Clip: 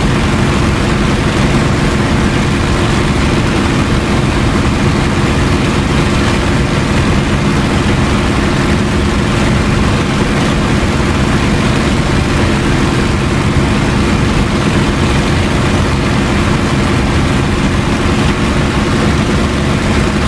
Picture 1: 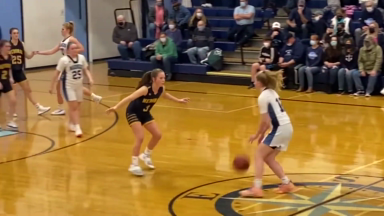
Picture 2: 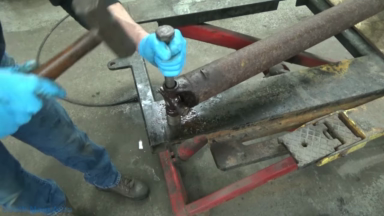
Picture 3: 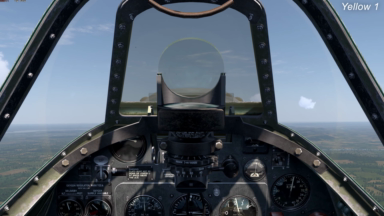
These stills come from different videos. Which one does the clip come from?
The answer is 3